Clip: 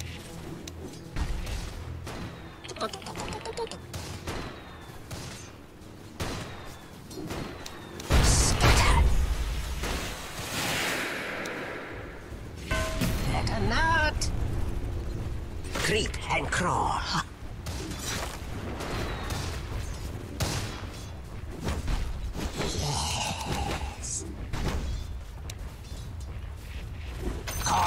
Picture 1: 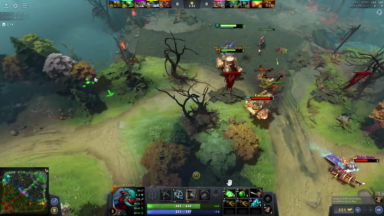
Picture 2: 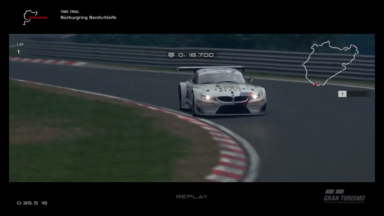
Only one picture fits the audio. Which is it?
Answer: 1